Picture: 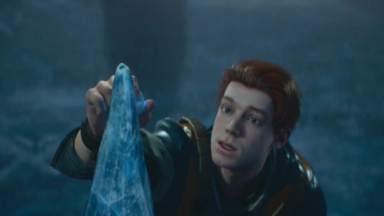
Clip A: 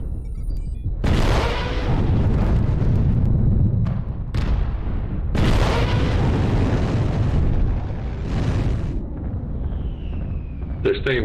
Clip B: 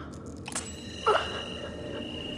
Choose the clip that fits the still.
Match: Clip B